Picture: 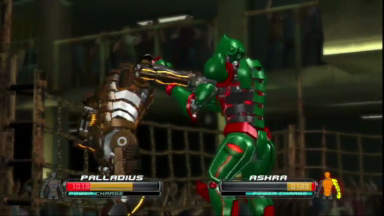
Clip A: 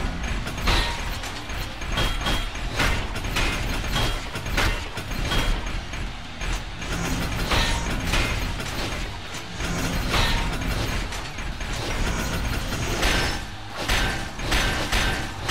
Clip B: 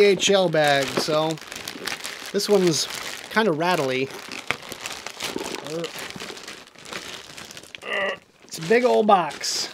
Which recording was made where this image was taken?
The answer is A